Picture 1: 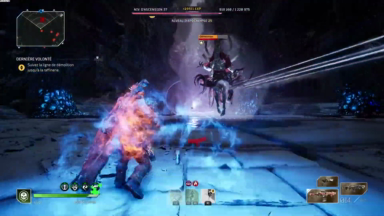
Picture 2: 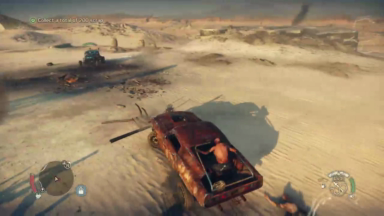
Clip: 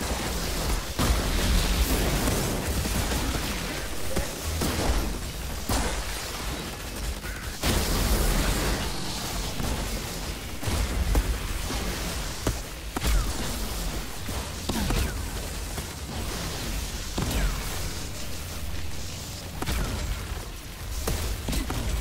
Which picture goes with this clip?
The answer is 1